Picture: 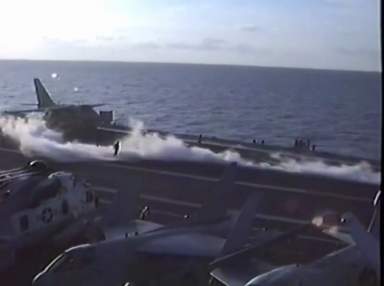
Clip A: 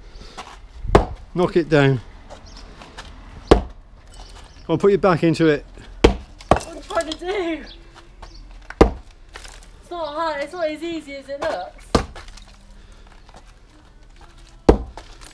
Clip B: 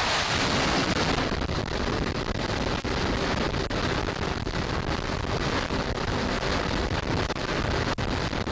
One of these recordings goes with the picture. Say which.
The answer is B